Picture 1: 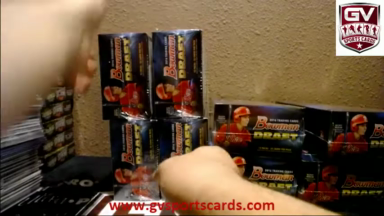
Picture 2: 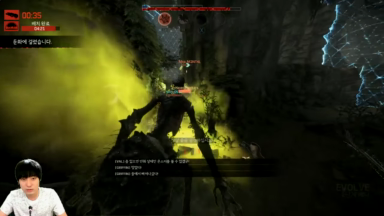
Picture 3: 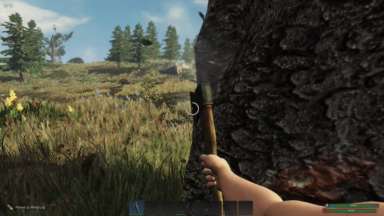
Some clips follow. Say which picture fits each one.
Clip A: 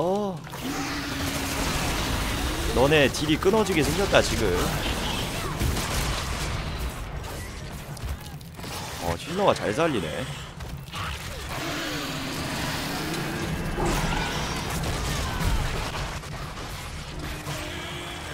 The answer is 2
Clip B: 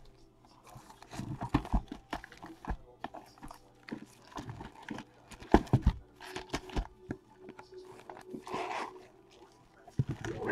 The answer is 1